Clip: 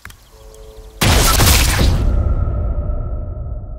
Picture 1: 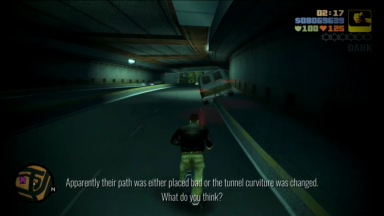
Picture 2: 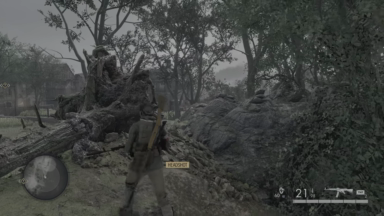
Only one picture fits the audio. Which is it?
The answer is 2